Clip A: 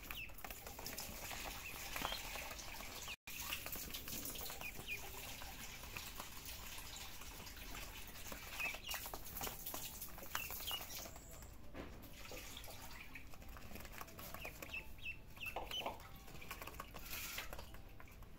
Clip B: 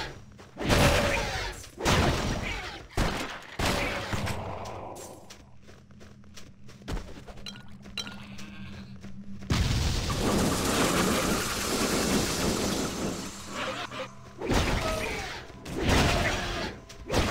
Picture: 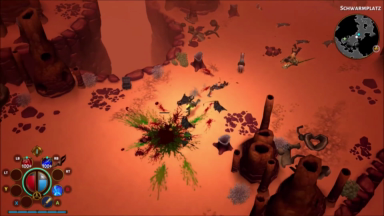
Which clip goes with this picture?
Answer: B